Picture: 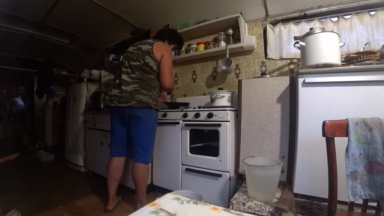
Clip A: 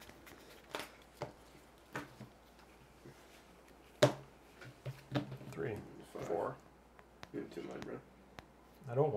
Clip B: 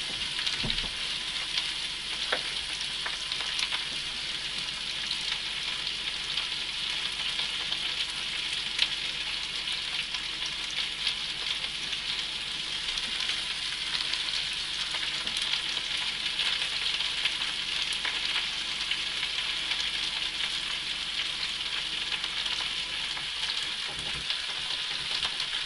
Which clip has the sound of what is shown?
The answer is B